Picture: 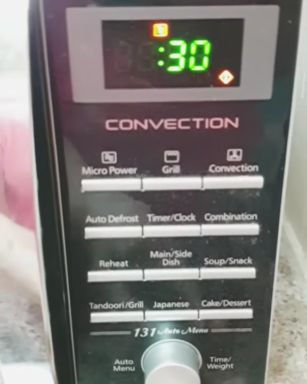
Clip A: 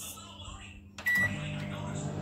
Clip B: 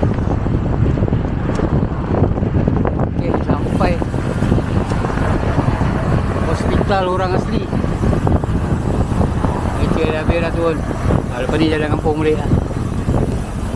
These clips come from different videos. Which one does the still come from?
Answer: A